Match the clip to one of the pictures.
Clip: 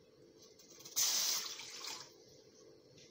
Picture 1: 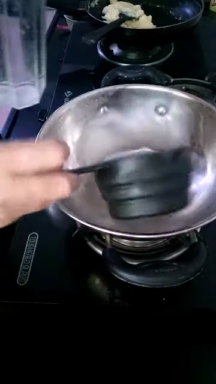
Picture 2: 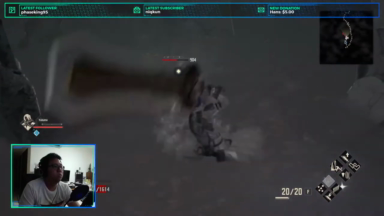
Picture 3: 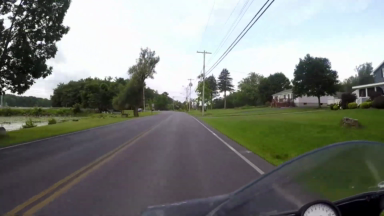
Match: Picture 1